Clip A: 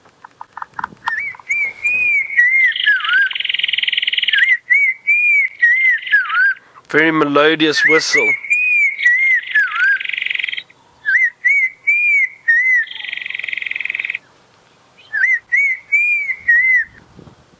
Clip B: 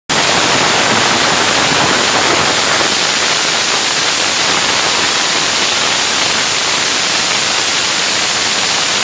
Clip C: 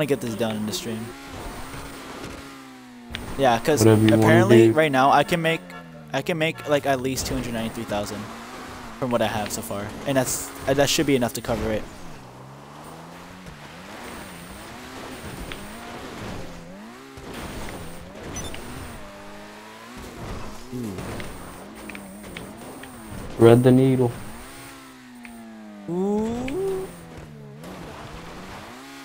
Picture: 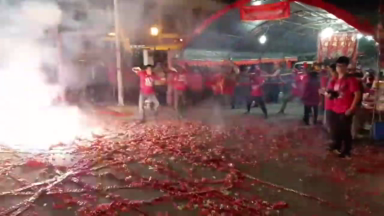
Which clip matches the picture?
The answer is B